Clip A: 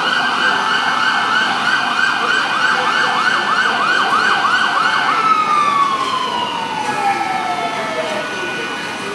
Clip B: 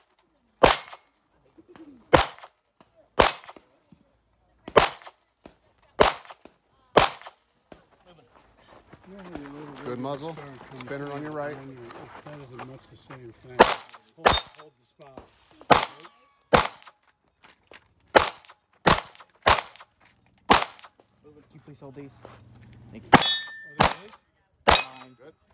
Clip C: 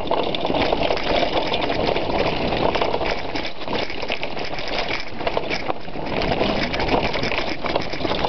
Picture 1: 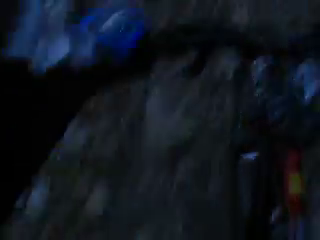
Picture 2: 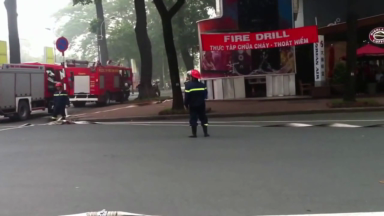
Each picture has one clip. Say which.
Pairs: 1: C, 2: A